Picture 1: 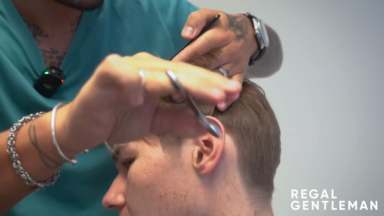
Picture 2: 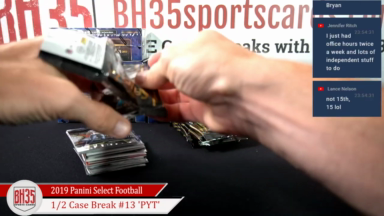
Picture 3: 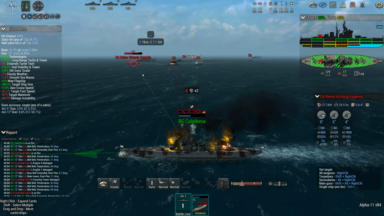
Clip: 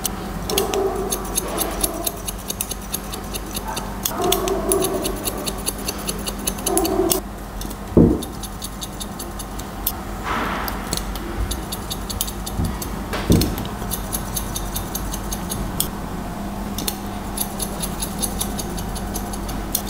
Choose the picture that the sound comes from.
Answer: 1